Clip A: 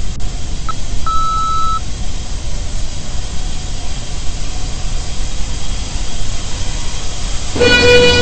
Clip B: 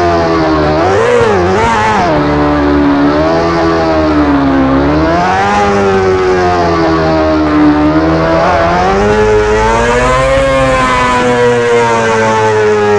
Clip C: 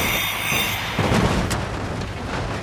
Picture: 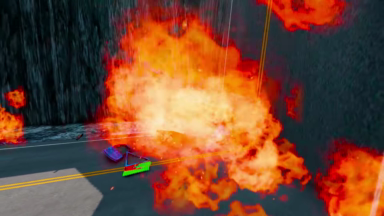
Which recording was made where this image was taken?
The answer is C